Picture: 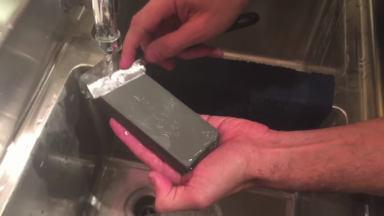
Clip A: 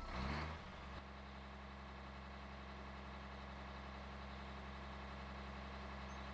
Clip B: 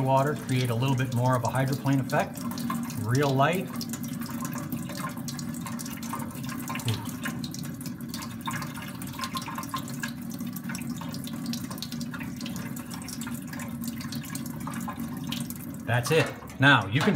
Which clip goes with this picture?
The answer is B